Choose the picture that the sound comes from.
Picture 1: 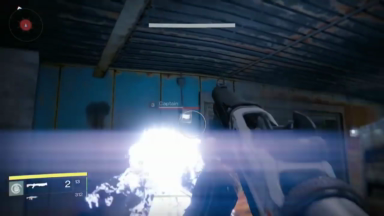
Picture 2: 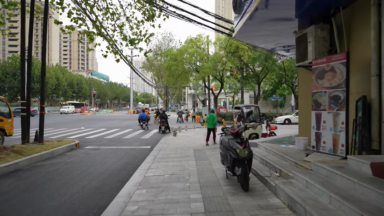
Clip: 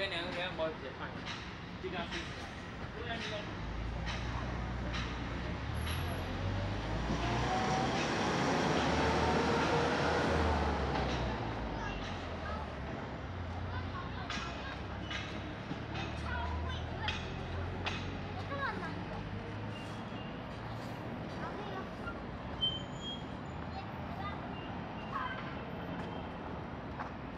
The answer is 2